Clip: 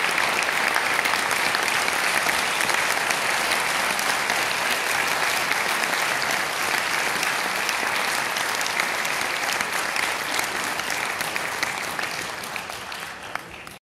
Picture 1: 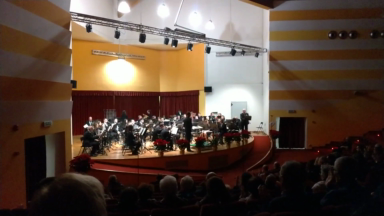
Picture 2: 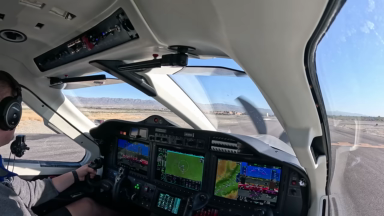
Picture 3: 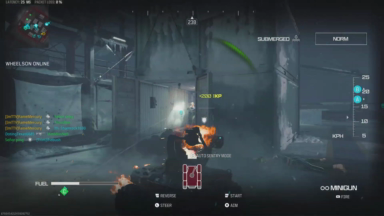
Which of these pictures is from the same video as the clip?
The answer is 1